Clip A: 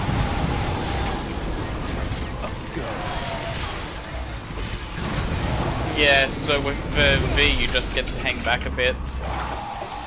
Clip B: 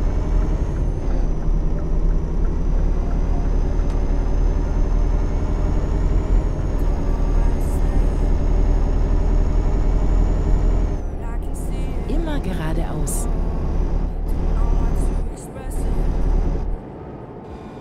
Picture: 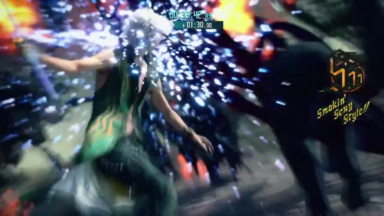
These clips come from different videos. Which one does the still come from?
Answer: A